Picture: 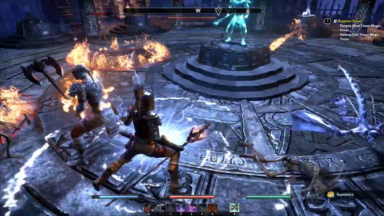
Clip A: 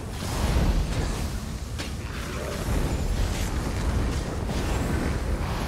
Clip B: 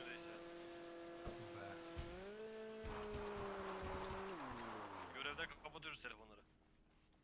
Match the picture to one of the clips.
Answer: A